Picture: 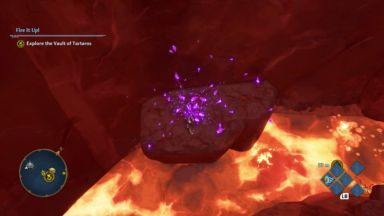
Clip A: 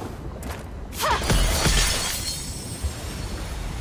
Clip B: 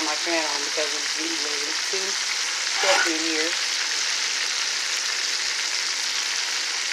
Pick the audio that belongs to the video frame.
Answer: A